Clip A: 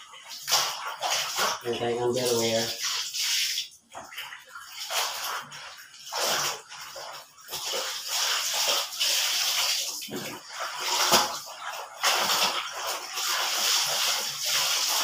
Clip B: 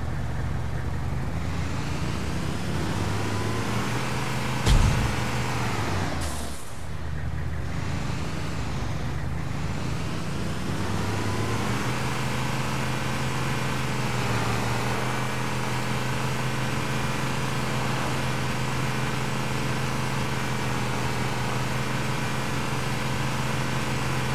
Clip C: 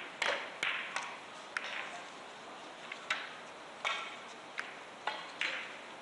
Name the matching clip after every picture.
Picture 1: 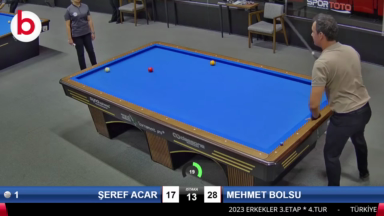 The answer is C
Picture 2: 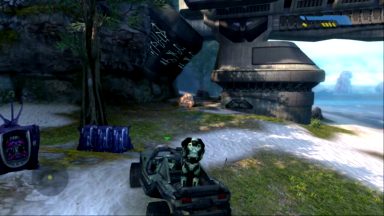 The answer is B